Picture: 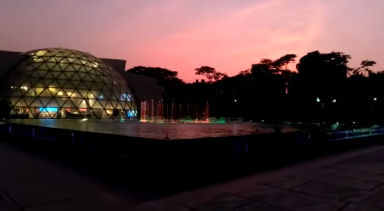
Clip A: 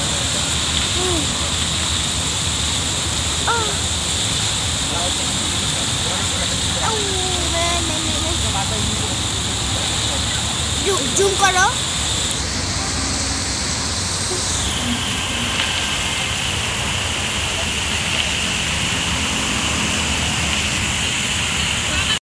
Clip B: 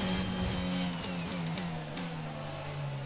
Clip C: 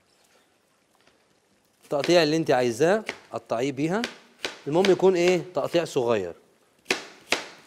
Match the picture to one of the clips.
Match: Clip A